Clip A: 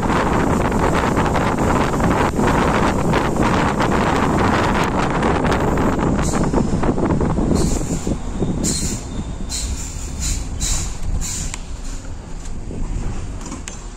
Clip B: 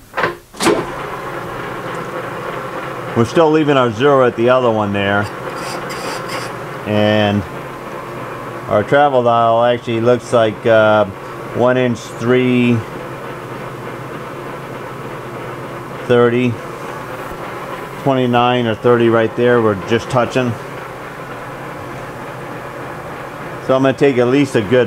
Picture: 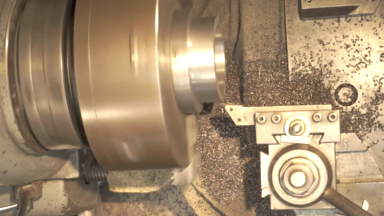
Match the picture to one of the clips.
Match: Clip B